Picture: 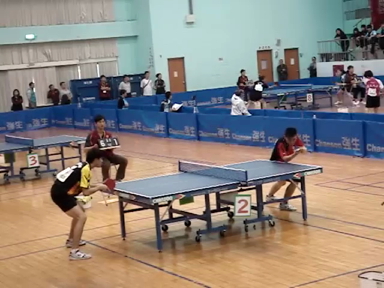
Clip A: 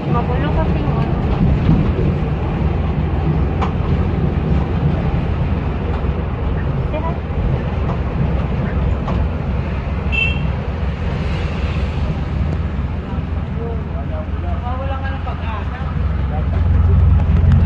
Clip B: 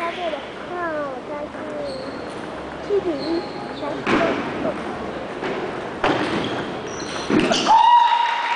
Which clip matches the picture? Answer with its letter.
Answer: B